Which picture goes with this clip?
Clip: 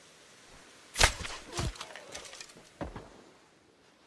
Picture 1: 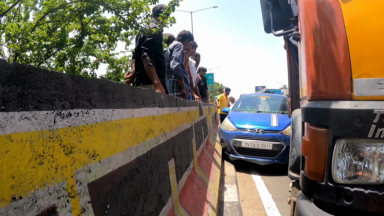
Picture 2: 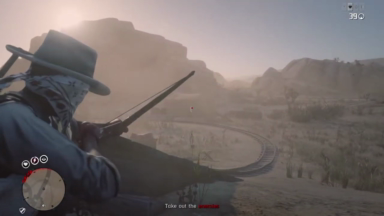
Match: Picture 2